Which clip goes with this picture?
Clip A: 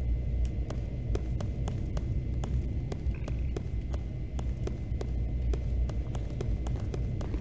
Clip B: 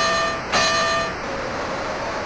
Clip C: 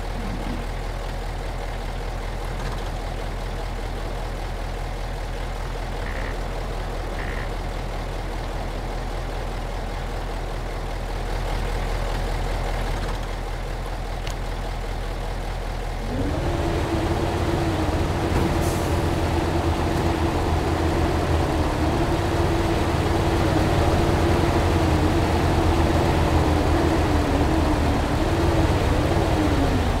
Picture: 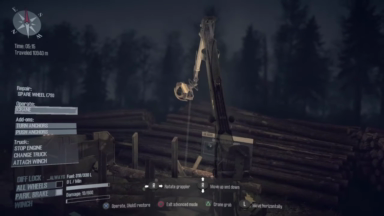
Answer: C